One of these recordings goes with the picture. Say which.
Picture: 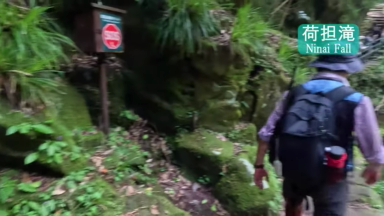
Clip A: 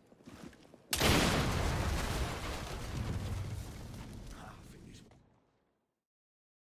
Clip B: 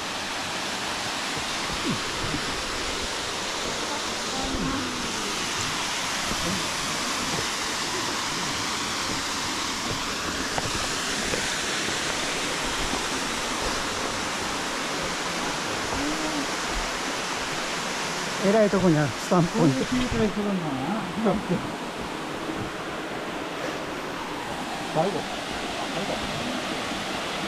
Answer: B